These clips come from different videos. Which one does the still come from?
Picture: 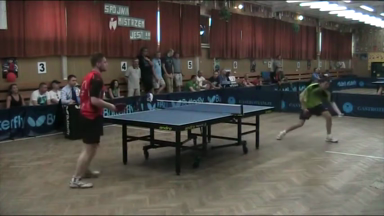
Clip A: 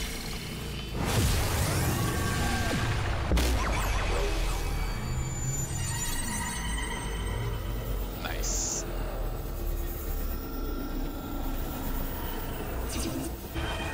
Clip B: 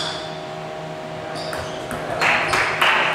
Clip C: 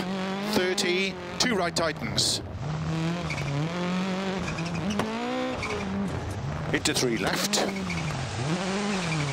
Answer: B